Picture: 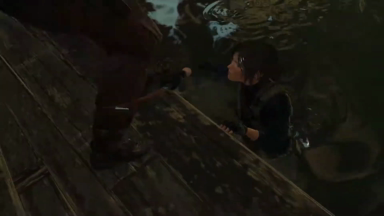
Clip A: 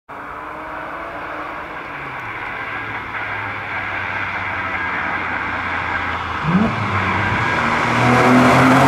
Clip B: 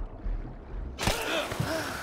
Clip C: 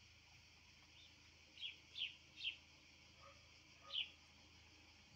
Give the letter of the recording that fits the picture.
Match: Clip B